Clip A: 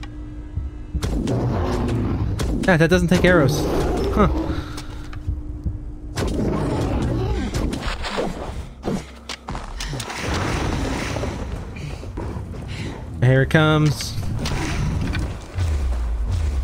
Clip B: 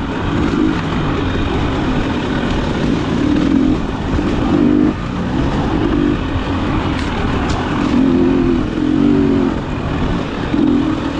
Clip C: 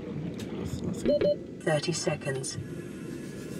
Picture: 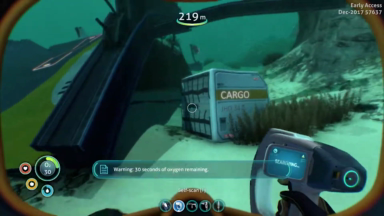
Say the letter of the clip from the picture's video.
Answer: C